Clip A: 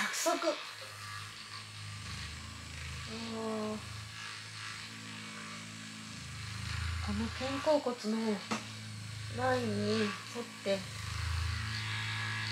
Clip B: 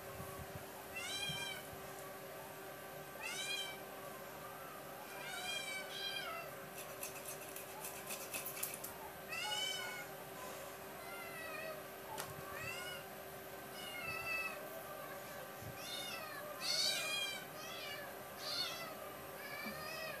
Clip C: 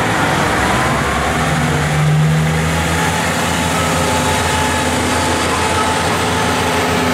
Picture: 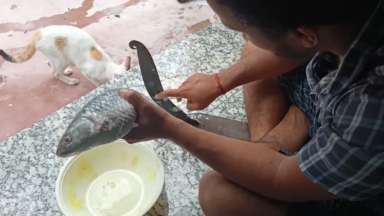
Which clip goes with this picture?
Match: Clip B